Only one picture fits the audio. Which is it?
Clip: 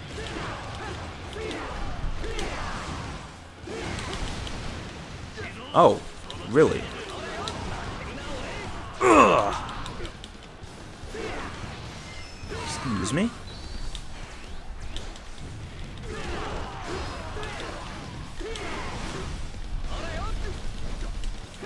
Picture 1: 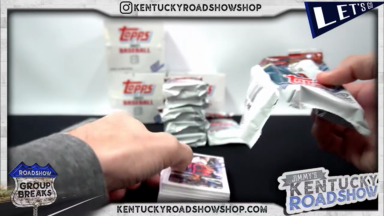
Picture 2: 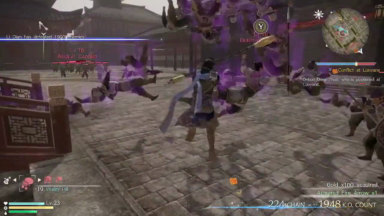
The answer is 2